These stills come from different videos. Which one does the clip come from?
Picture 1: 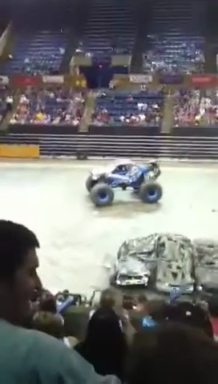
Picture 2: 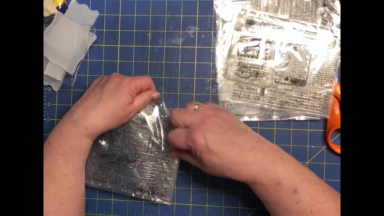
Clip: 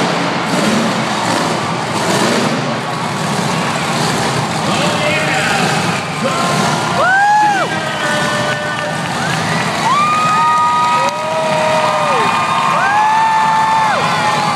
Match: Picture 1